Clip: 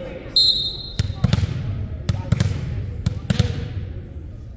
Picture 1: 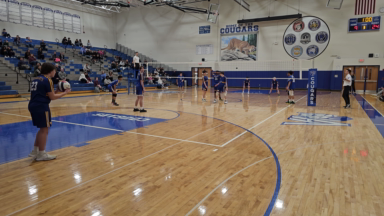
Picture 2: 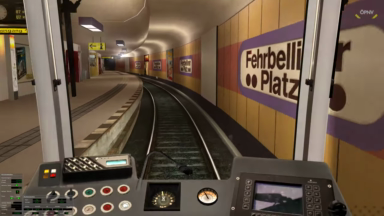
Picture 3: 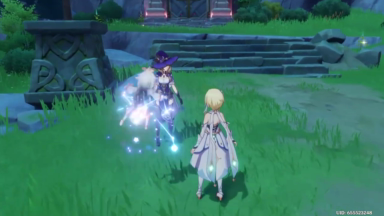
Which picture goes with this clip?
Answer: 1